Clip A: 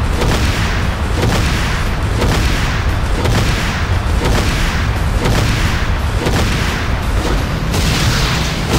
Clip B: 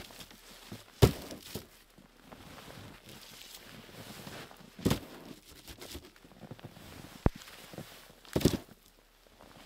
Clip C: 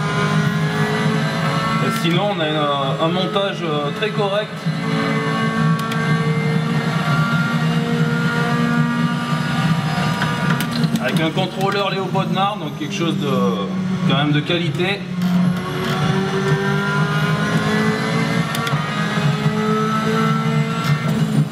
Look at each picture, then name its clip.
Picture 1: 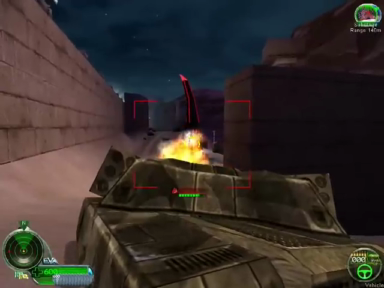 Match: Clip A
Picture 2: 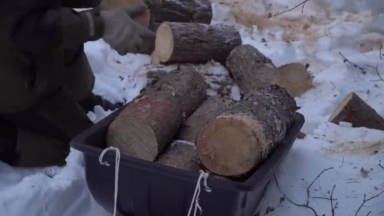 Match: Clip B